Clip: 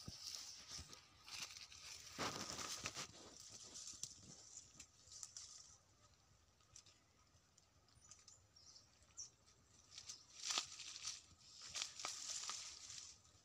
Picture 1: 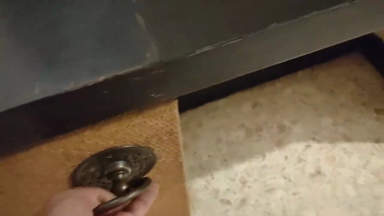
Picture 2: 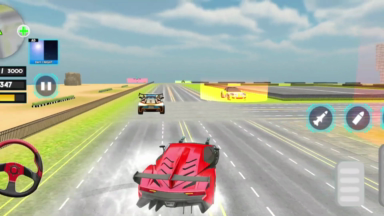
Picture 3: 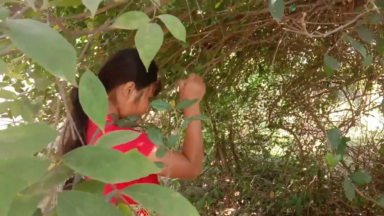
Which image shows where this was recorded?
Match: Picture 3